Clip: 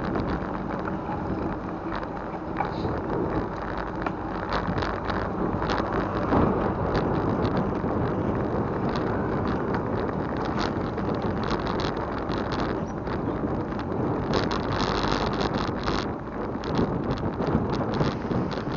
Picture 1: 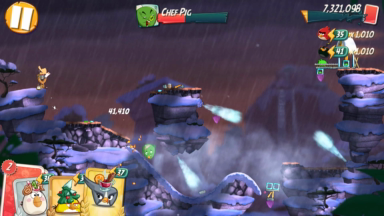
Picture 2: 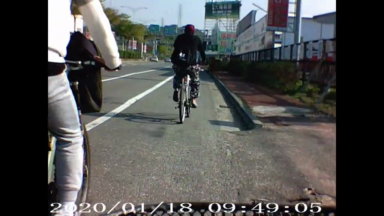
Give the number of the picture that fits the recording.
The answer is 2